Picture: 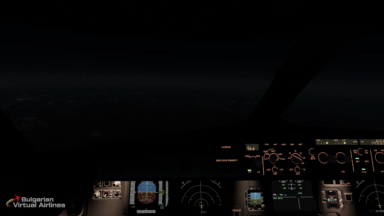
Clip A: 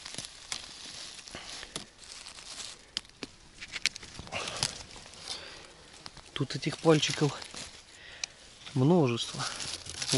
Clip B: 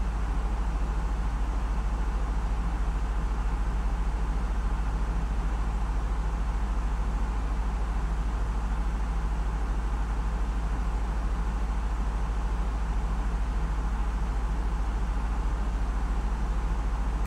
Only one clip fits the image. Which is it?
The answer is B